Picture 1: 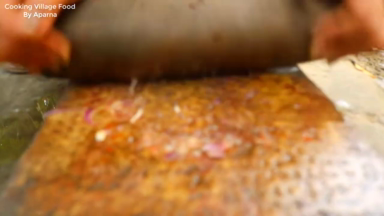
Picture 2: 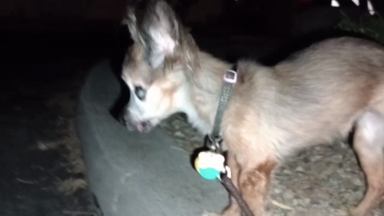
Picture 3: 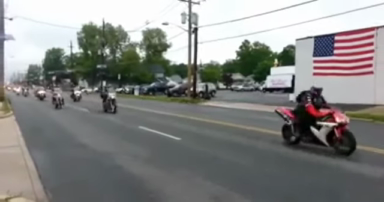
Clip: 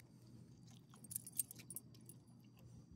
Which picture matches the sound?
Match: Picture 2